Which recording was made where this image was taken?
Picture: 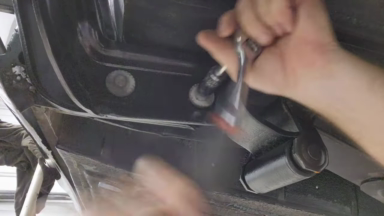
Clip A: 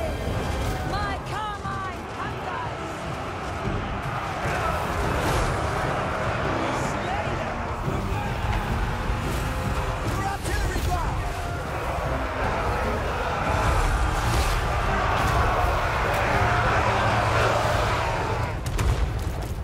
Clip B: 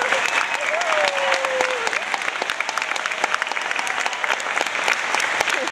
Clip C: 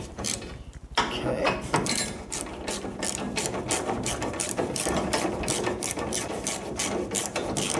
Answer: C